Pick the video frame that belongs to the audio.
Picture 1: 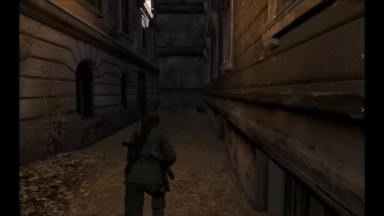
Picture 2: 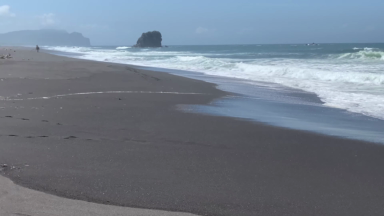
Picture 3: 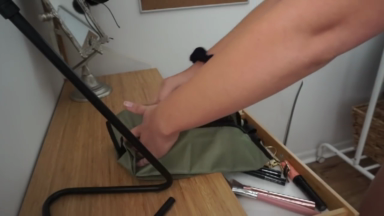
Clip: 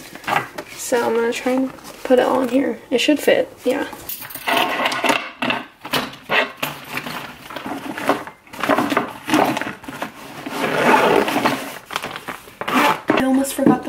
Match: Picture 3